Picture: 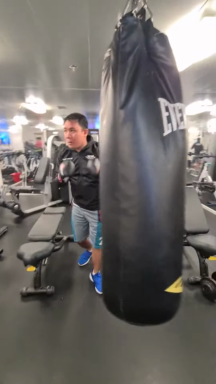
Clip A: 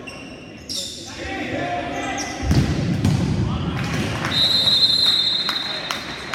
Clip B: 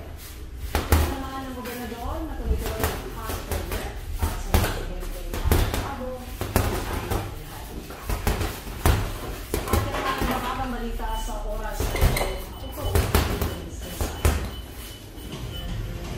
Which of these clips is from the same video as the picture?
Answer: B